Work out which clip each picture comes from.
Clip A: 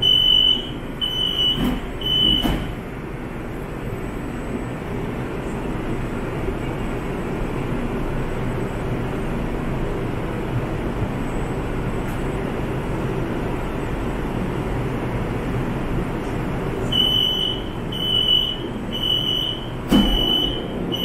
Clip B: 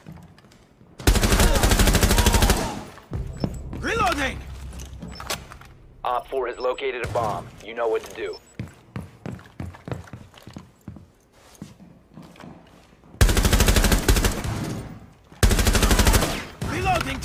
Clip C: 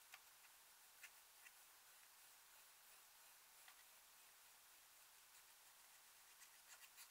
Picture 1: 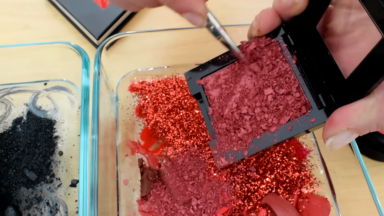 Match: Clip C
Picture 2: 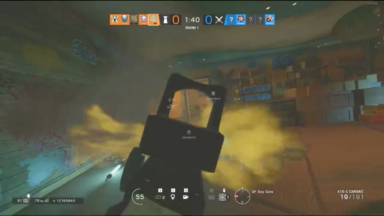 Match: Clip B